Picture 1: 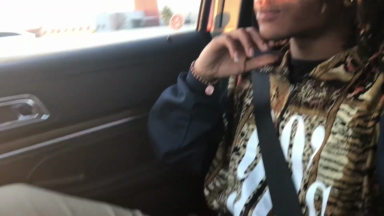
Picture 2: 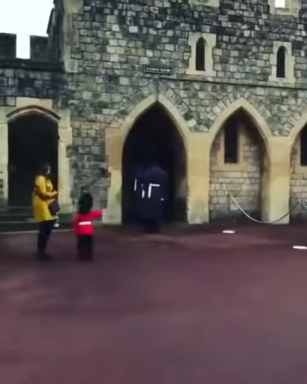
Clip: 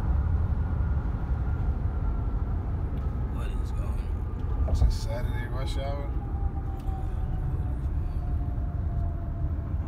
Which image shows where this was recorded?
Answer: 1